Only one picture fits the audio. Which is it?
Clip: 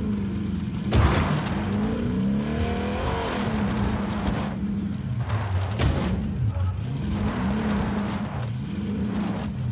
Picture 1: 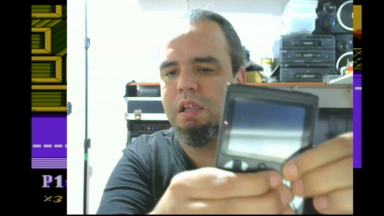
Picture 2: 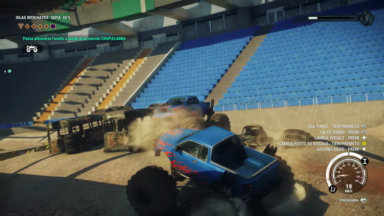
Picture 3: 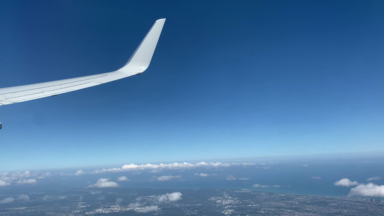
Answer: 2